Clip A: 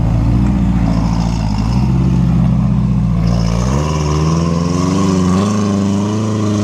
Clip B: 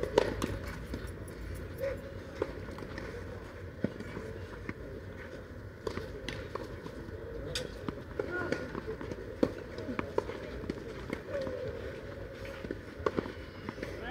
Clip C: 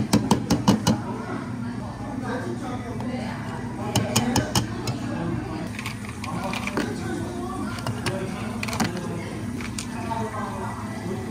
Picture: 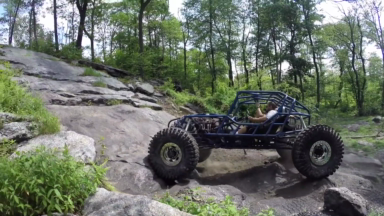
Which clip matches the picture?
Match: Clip A